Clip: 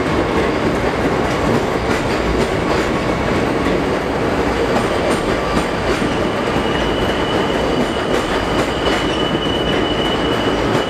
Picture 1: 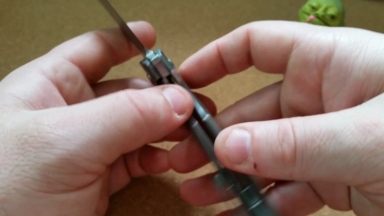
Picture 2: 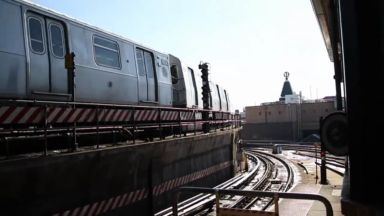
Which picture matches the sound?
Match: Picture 2